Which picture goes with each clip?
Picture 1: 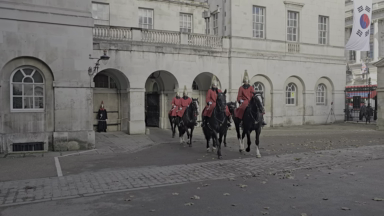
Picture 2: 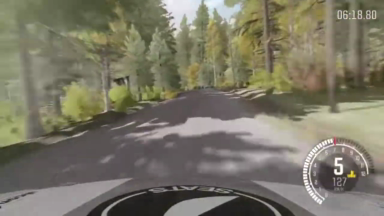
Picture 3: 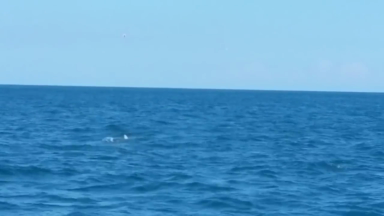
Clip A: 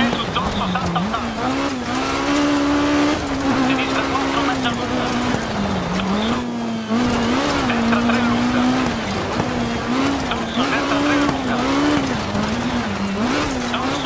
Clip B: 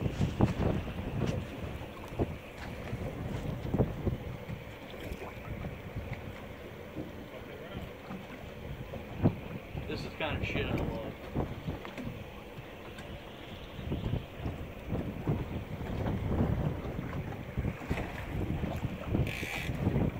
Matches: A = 2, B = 3